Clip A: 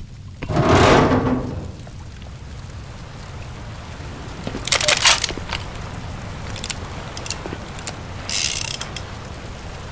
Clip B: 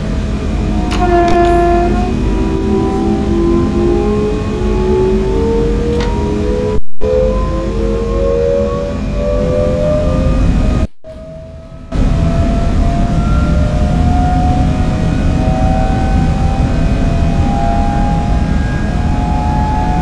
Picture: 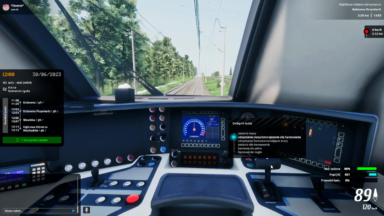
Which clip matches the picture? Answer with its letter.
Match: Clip B